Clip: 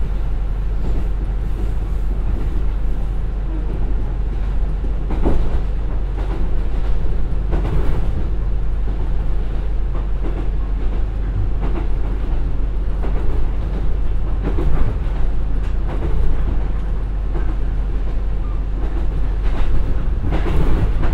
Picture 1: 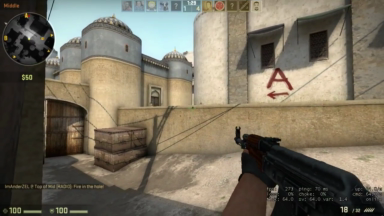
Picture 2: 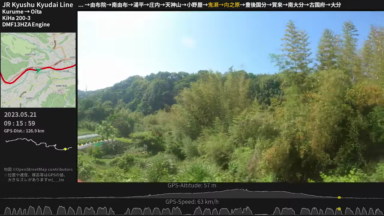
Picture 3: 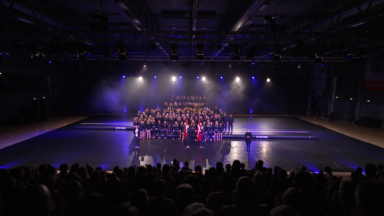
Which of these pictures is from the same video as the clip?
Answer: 2